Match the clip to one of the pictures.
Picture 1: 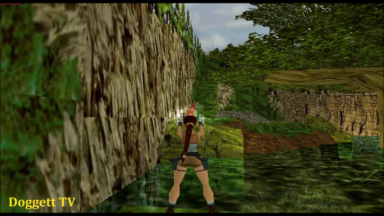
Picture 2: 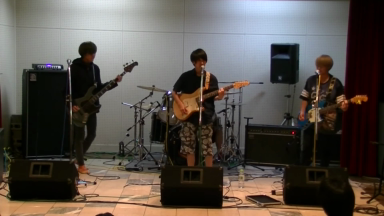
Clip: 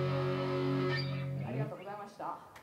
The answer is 2